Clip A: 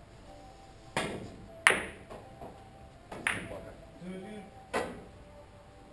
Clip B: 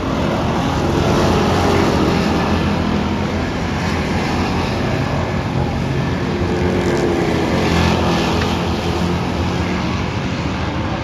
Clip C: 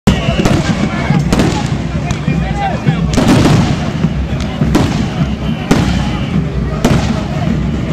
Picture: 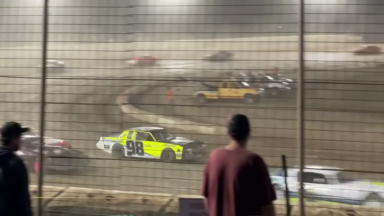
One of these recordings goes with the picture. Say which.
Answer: B